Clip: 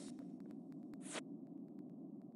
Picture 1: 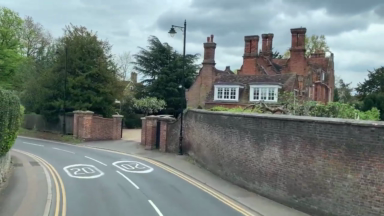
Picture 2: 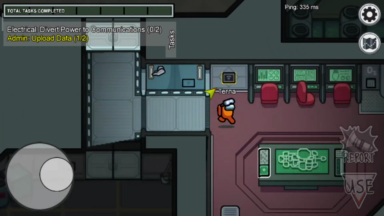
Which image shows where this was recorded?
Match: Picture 2